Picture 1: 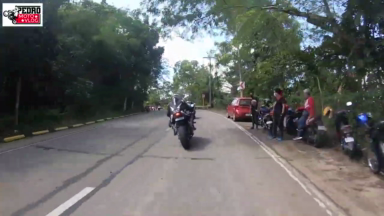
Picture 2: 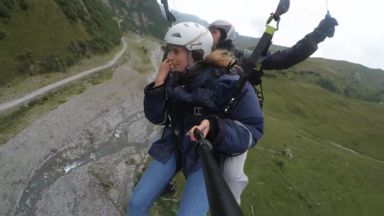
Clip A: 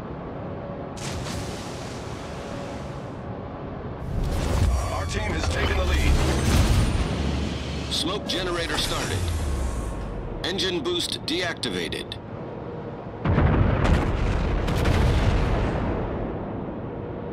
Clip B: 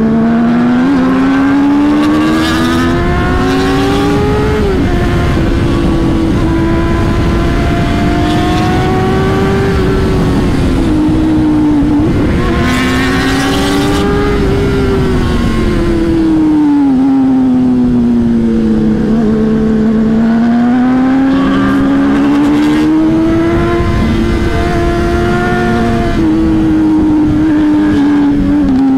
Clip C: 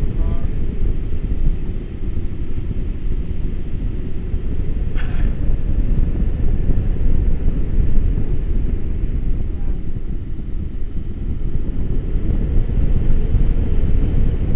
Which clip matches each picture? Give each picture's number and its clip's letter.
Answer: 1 B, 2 C